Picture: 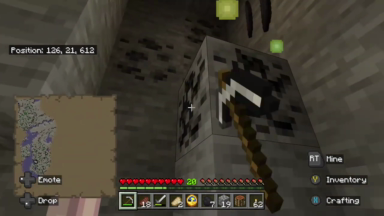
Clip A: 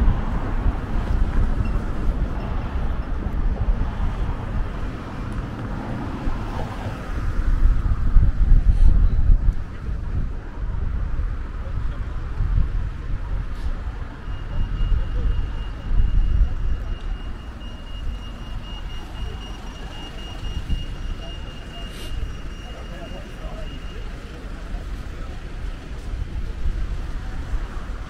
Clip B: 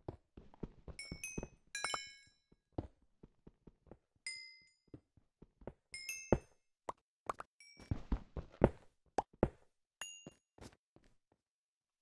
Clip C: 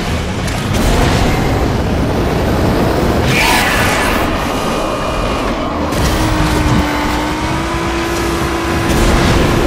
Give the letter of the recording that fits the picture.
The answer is B